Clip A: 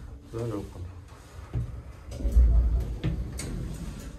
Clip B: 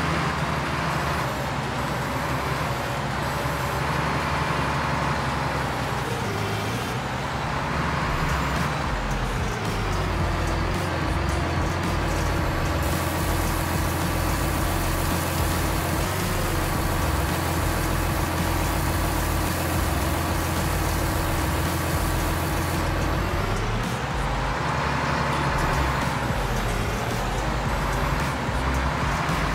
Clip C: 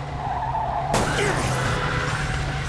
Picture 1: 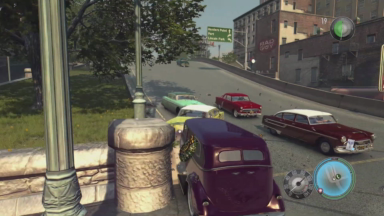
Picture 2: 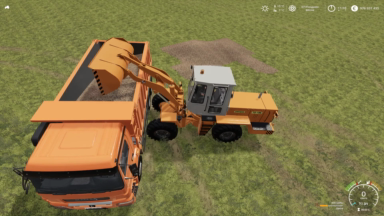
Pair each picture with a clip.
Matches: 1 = C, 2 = B